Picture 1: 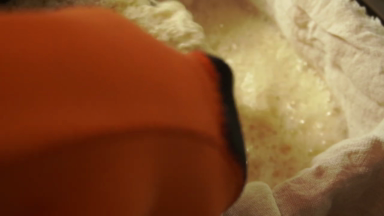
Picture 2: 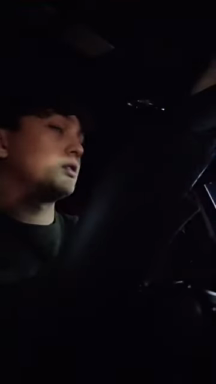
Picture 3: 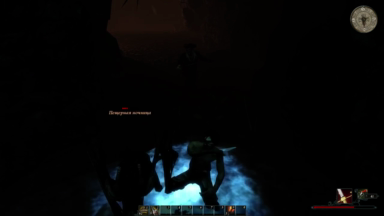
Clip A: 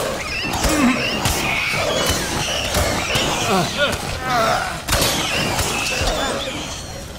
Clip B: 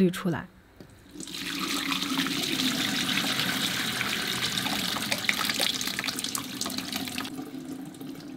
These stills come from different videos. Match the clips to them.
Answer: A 3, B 1